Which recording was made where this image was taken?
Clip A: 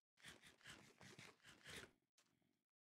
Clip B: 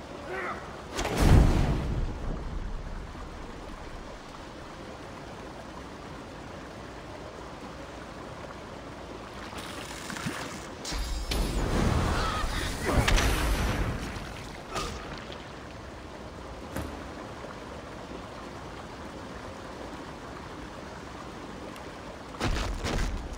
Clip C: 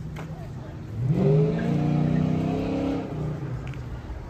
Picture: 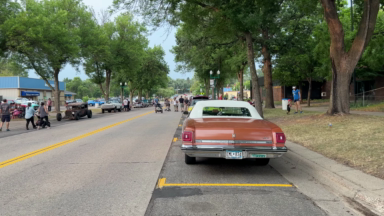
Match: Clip C